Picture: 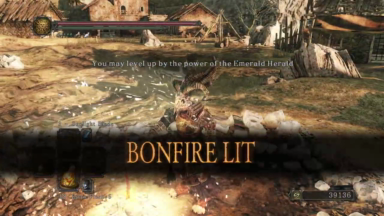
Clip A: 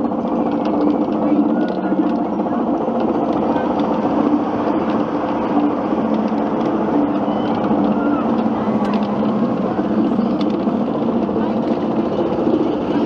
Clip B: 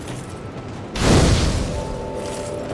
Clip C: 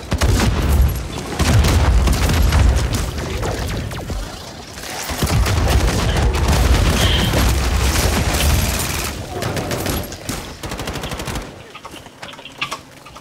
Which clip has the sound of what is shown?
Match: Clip B